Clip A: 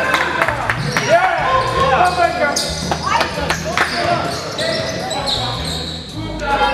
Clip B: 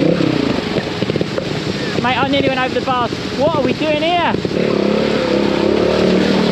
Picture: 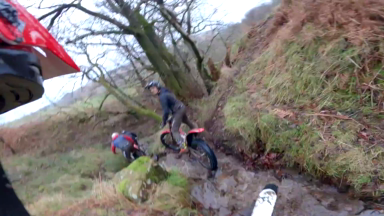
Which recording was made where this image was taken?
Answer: B